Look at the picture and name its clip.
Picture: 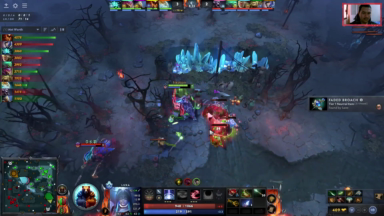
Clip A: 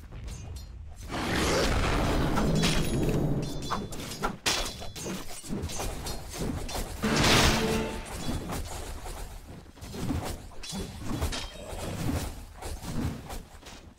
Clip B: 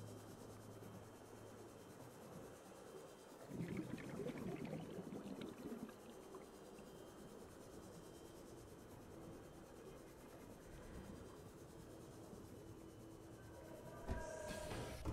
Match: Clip A